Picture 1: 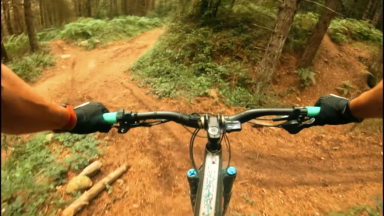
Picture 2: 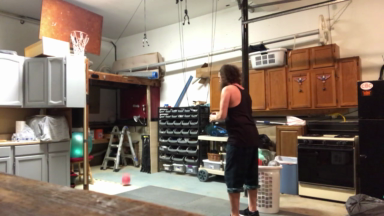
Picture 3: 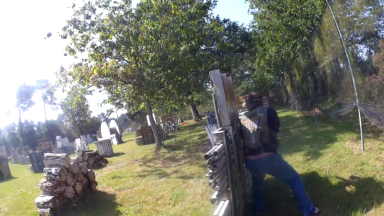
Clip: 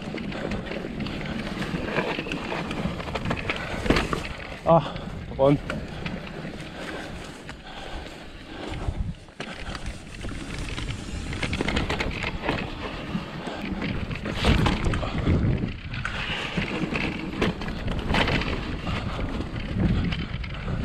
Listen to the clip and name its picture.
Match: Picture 1